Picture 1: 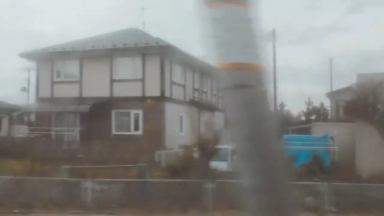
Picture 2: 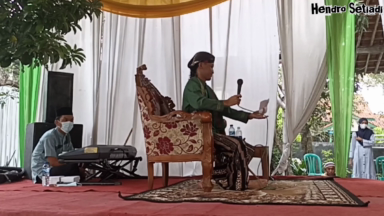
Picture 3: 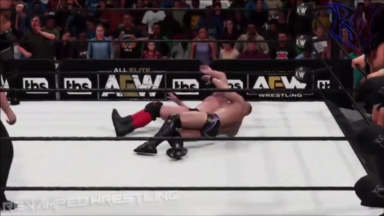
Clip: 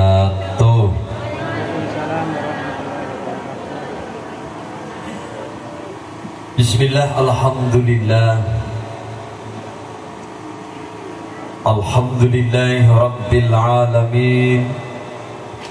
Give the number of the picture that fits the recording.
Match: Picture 2